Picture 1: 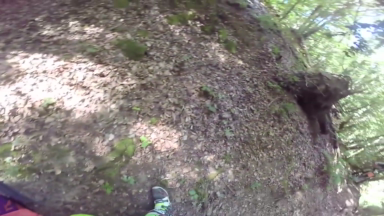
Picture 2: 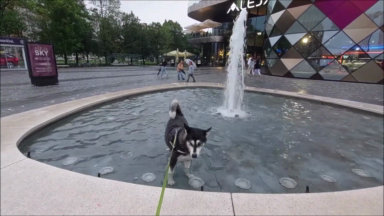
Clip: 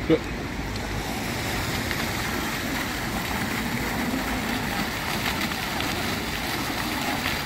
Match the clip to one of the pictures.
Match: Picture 2